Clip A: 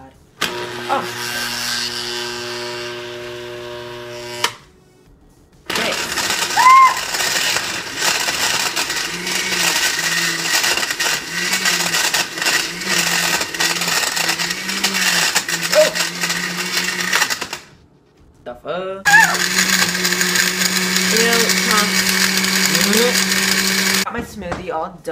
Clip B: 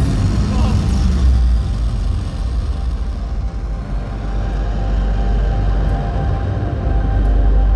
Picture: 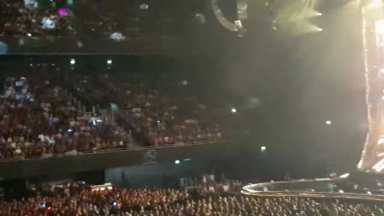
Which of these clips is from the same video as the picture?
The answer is B